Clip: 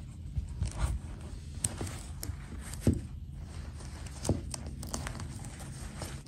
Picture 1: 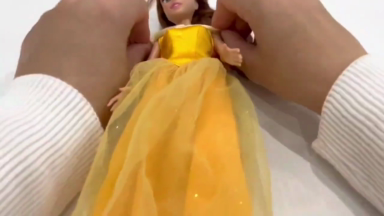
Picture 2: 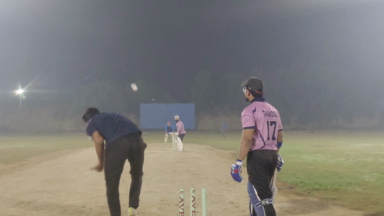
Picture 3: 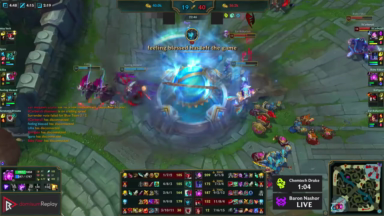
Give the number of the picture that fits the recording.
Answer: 1